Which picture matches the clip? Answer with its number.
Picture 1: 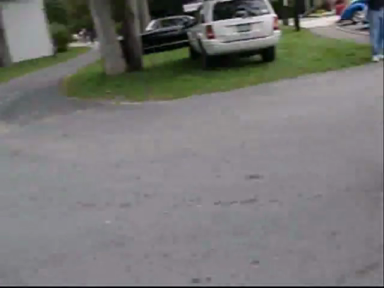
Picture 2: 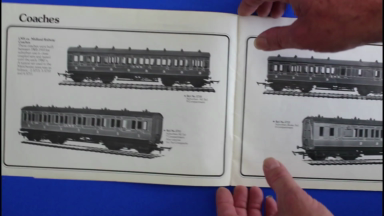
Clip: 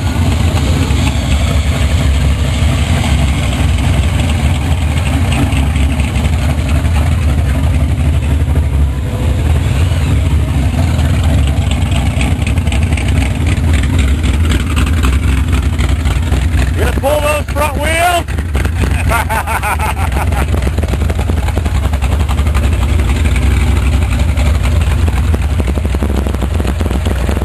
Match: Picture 1